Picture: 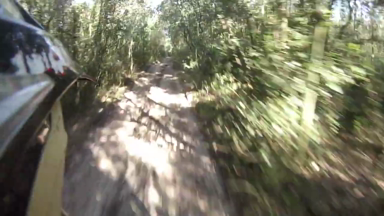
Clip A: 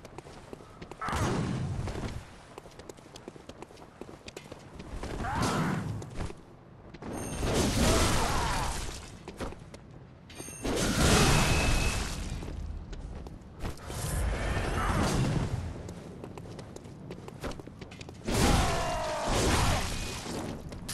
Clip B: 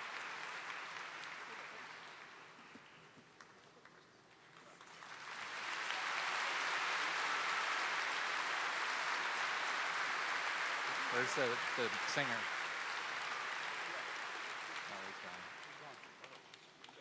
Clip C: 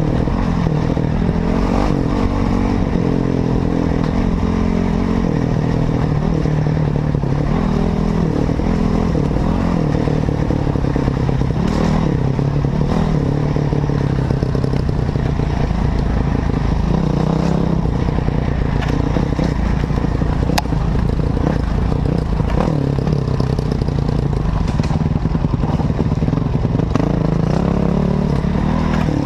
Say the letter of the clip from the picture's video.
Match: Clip C